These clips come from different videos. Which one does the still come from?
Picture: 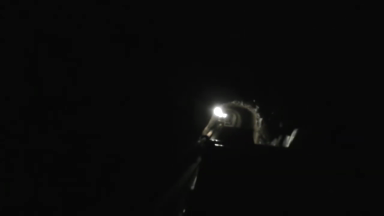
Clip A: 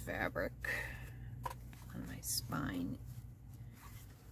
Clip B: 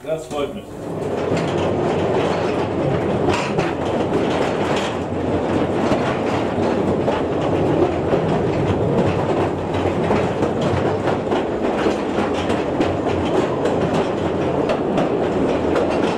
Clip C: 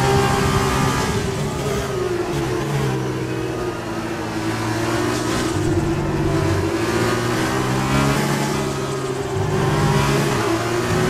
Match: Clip B